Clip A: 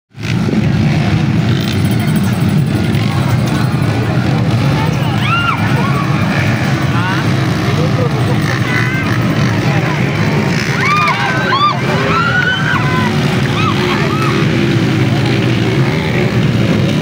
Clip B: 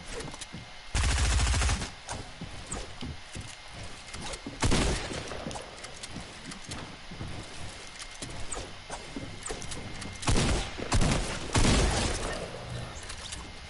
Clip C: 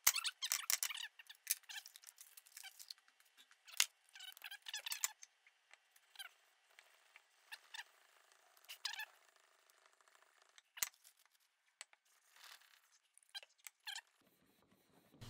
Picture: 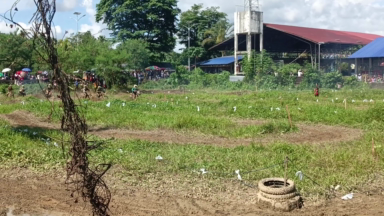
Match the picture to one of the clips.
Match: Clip A